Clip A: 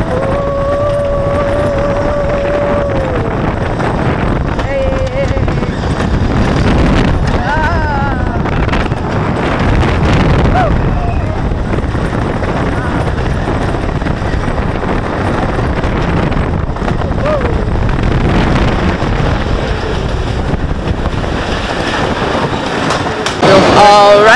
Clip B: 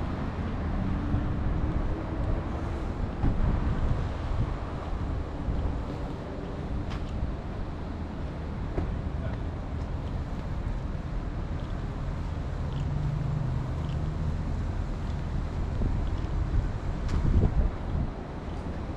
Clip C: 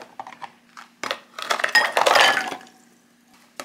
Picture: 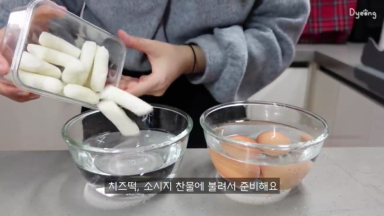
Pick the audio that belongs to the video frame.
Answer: C